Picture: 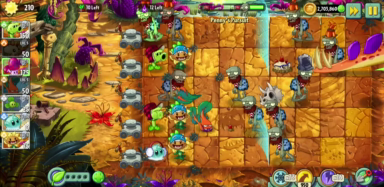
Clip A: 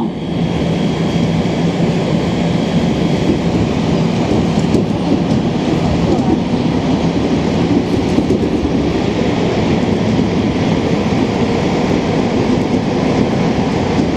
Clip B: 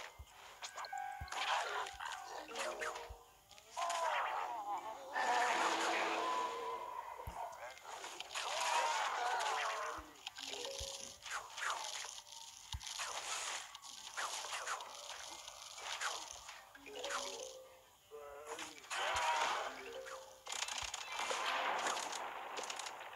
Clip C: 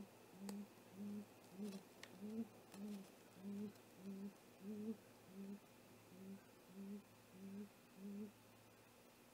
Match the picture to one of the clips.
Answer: B